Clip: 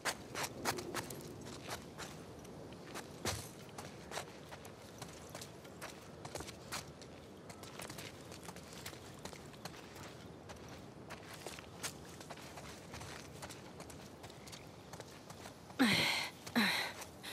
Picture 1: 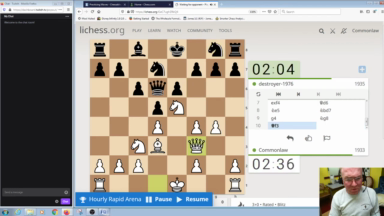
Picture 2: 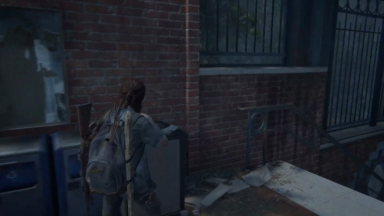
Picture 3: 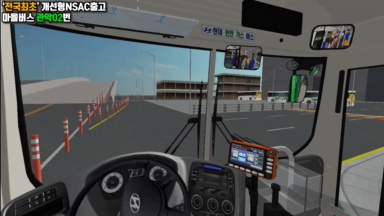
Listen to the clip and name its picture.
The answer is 2